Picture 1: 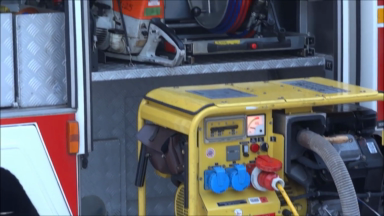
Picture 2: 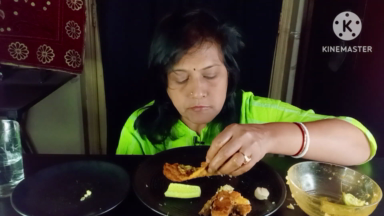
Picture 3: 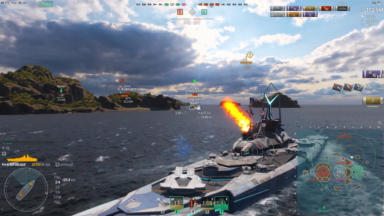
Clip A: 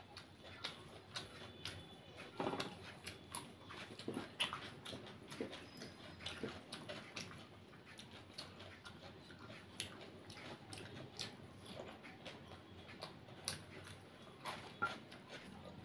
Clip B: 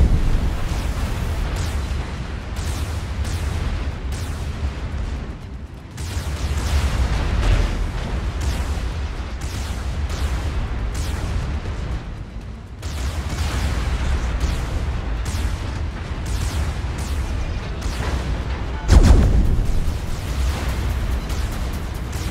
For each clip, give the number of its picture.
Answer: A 2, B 3